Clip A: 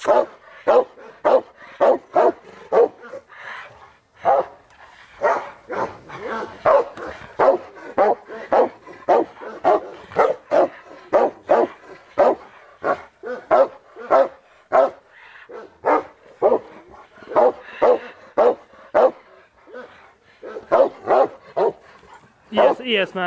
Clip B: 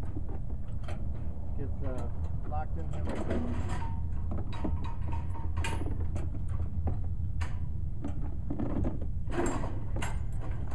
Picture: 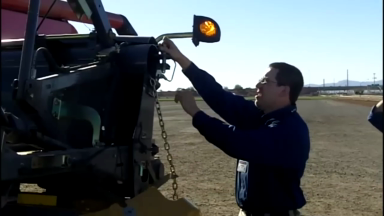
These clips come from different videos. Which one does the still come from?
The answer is B